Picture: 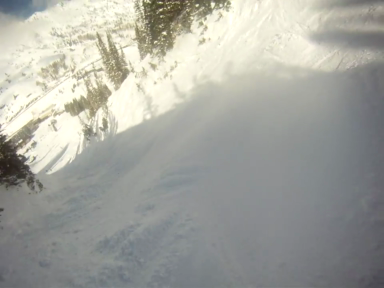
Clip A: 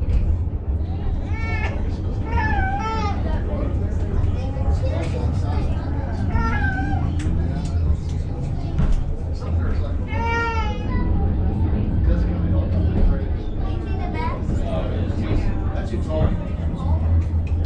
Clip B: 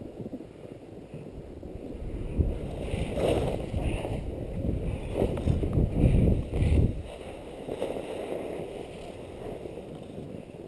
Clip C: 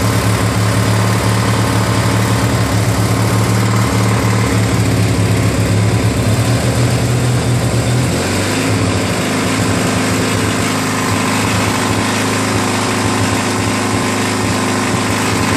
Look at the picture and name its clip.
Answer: B